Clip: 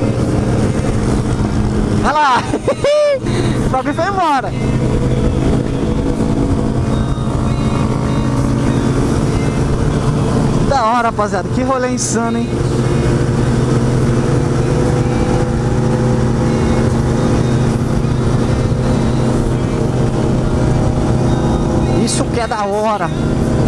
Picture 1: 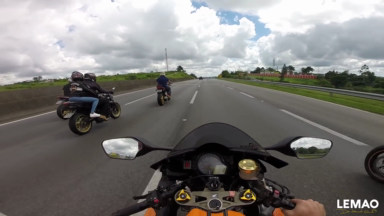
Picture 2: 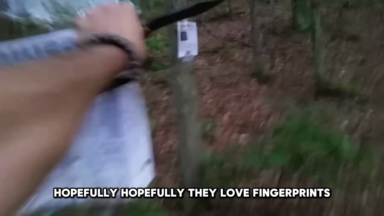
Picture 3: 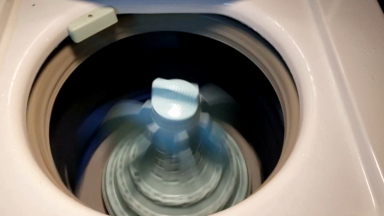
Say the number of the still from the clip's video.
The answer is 1